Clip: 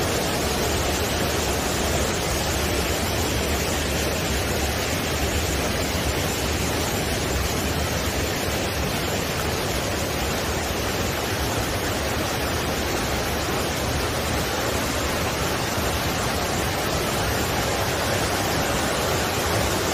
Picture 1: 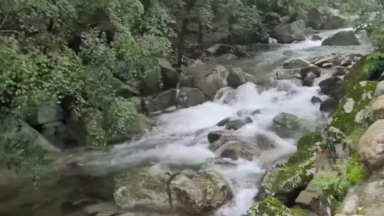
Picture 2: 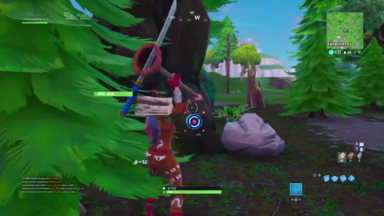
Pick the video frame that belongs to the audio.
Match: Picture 1